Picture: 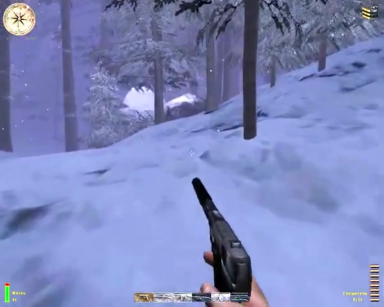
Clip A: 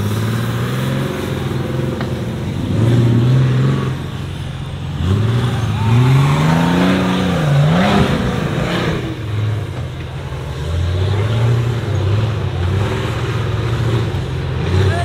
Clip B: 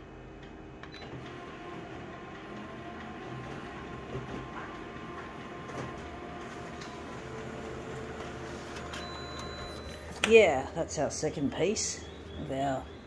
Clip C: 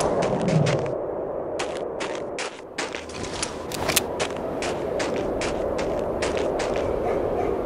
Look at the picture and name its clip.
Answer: C